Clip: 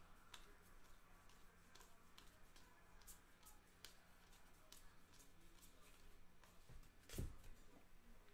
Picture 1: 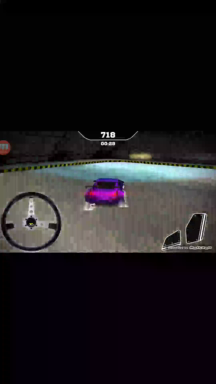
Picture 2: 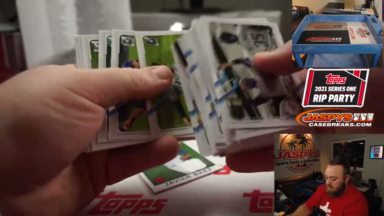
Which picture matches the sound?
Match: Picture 2